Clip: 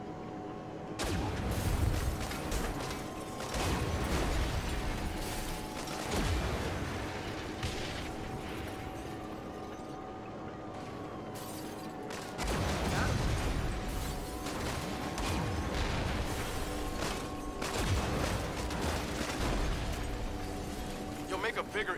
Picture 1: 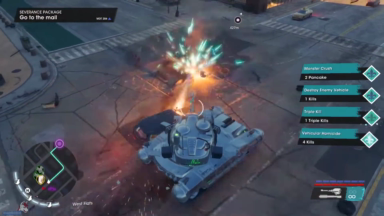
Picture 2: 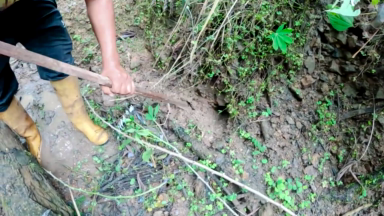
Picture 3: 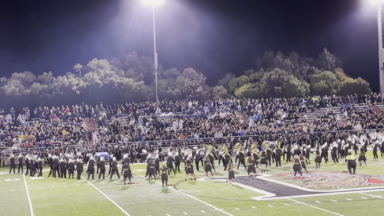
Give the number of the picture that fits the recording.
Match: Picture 1